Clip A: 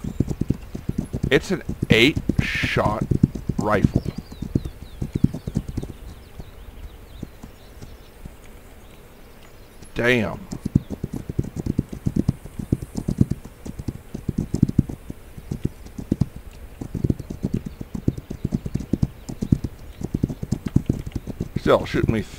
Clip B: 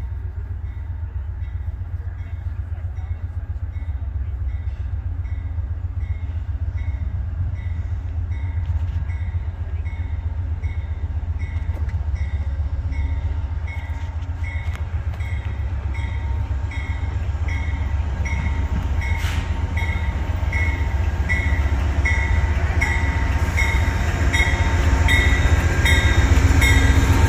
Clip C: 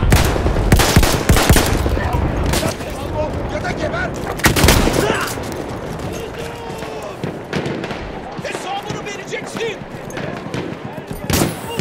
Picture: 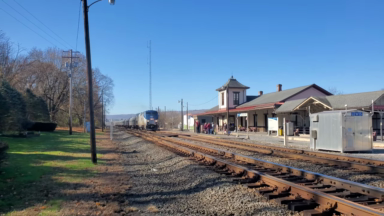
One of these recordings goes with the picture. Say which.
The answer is B